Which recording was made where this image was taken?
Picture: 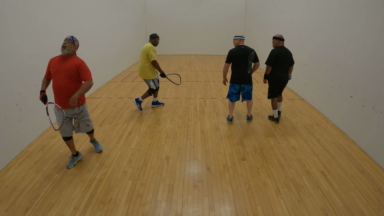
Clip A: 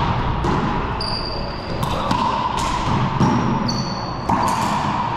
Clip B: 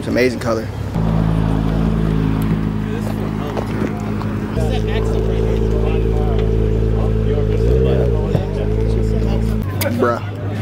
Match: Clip A